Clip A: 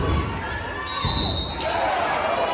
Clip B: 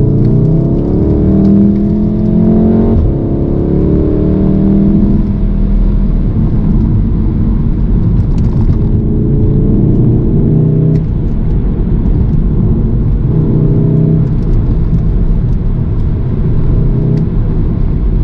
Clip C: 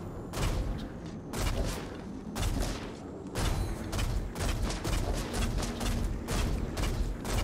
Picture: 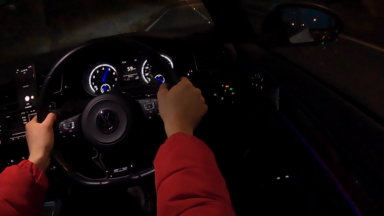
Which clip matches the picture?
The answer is B